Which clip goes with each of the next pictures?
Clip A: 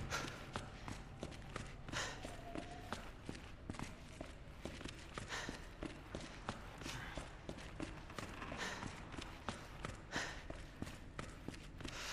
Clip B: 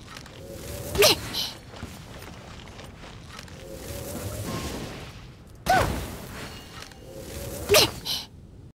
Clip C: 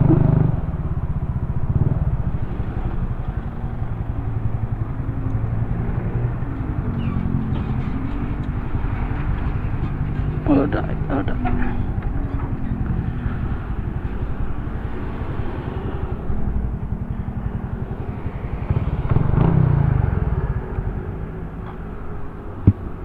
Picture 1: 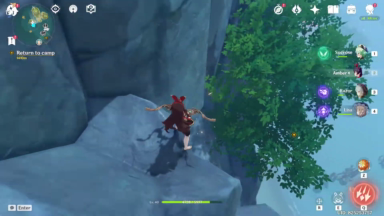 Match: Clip B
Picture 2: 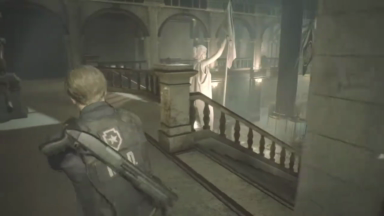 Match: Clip A